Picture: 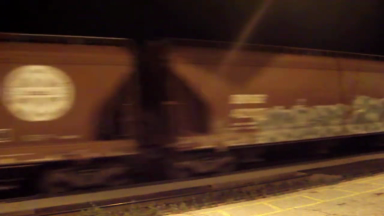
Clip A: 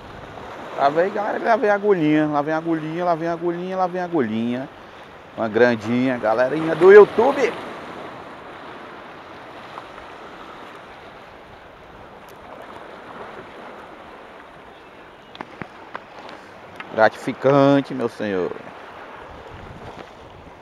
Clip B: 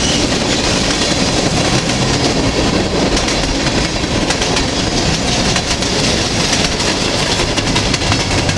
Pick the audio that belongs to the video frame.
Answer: B